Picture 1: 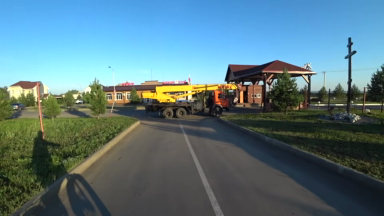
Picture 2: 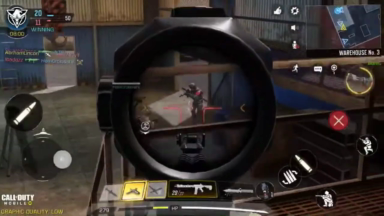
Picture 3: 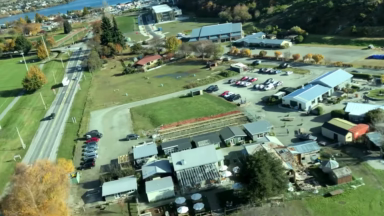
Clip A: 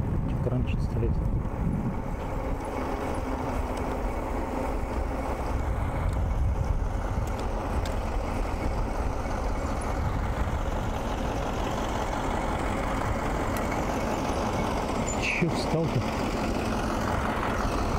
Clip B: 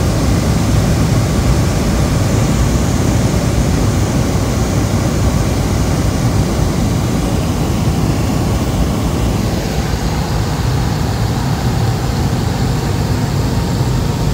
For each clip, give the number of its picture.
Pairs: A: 1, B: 3